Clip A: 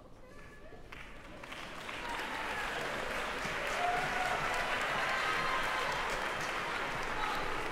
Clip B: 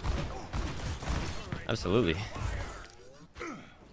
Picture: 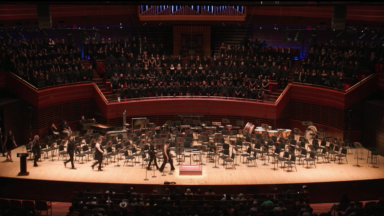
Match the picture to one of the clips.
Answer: A